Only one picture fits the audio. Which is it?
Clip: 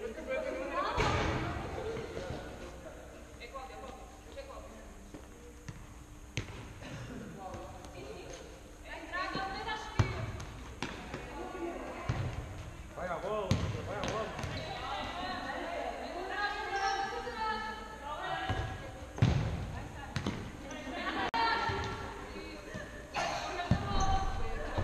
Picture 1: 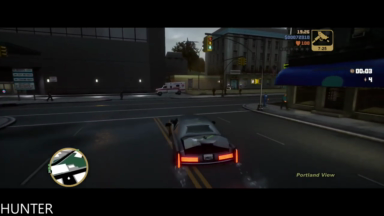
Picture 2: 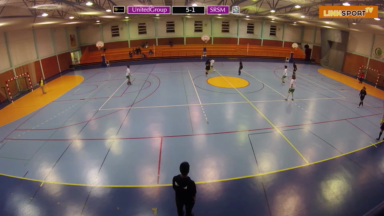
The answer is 2